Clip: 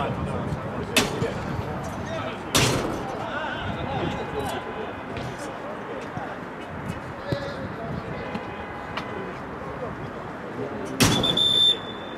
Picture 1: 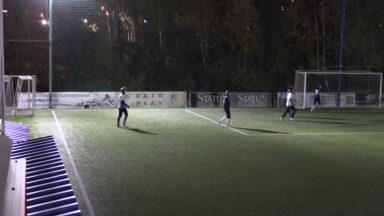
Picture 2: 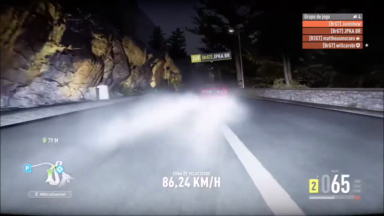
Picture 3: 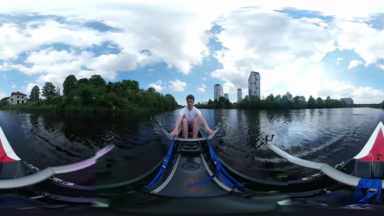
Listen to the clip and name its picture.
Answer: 1